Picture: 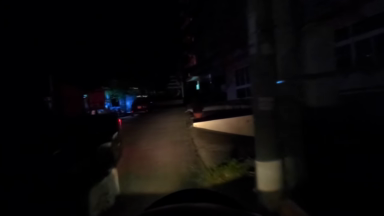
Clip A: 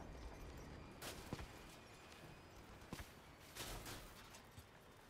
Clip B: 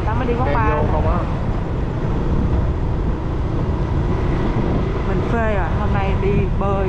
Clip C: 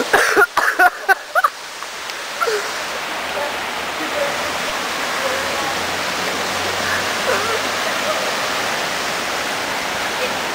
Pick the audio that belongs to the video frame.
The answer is B